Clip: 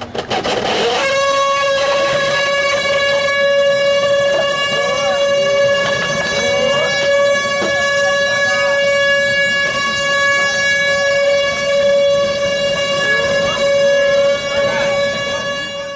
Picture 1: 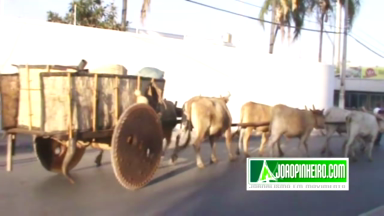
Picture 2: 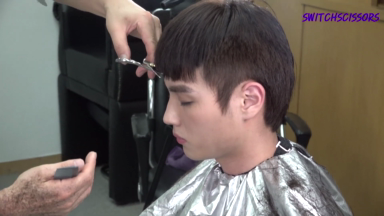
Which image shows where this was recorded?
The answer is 1